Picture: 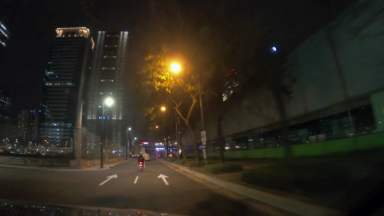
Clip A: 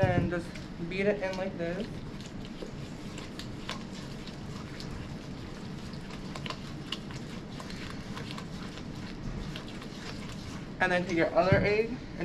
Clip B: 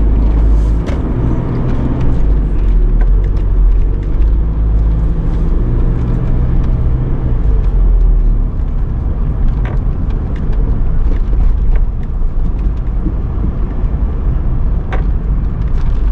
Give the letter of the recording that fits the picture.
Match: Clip B